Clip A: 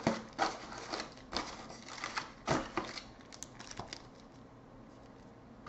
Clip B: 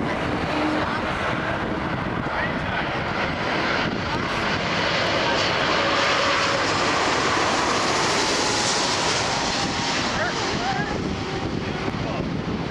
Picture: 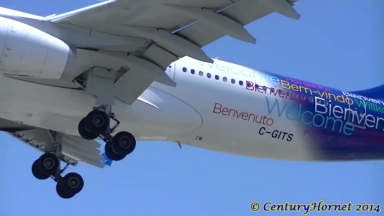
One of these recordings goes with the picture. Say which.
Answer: B